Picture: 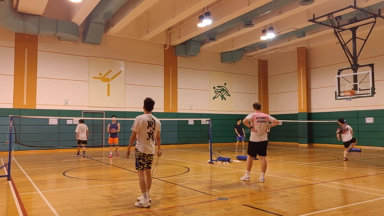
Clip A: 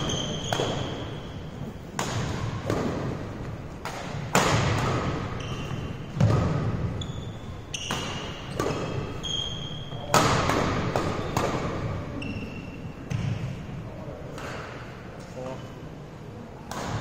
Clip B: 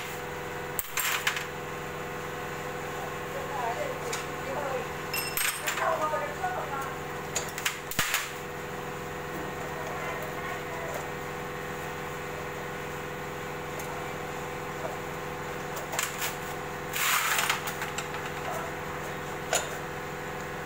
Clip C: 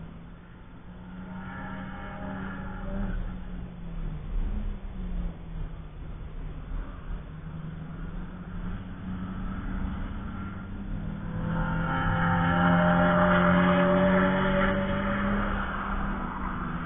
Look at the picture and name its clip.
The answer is A